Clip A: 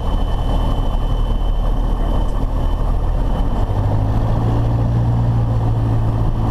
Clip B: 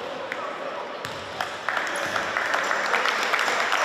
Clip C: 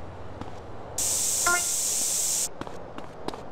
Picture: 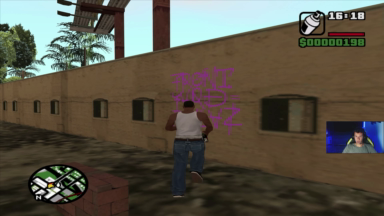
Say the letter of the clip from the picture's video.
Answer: C